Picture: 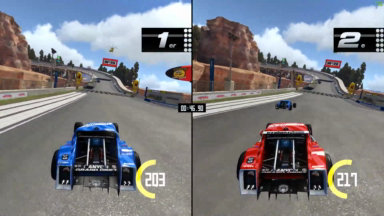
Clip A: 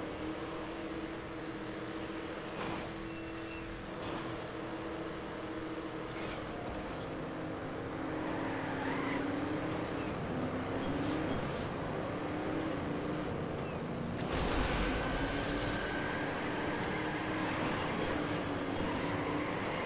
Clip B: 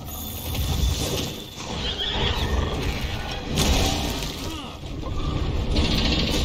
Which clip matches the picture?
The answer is A